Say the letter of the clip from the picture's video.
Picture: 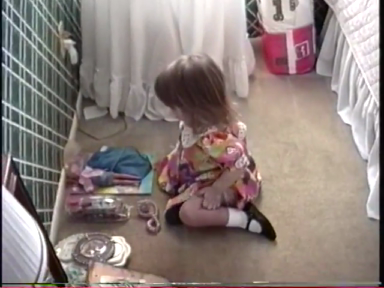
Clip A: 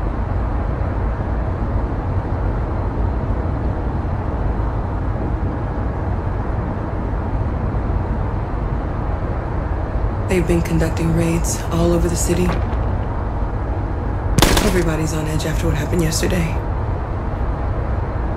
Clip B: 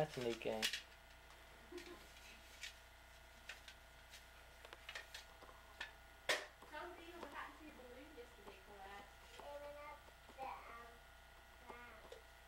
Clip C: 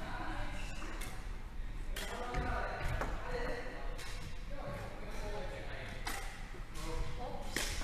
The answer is B